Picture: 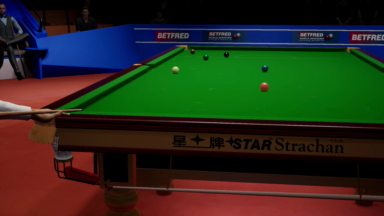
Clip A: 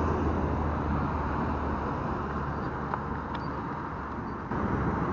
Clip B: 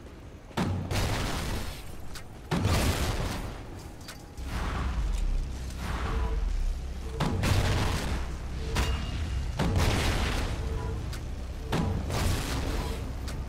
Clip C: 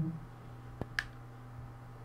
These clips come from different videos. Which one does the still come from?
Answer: C